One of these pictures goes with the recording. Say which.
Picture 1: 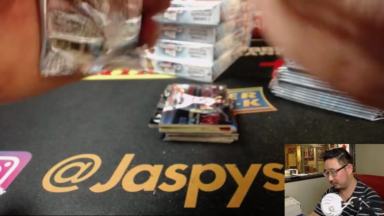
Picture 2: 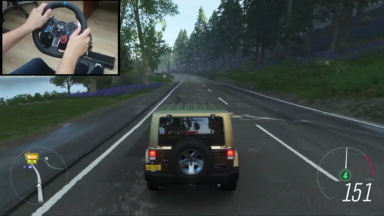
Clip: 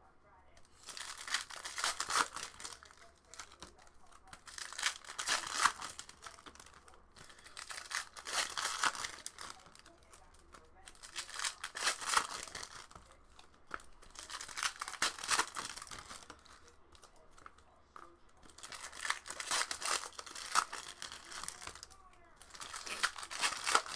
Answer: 1